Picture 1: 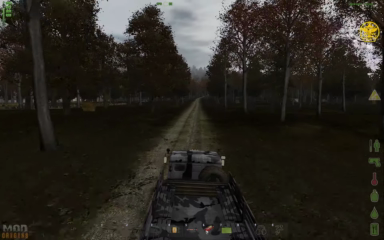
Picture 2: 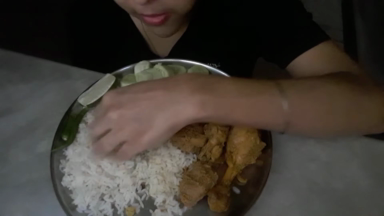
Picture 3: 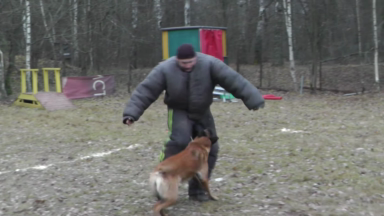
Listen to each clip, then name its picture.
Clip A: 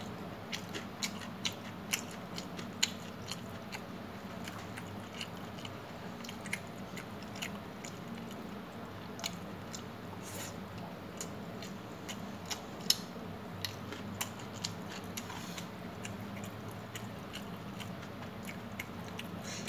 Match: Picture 2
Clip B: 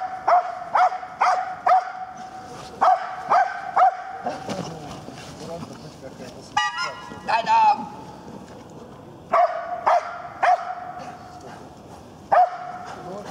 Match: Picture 3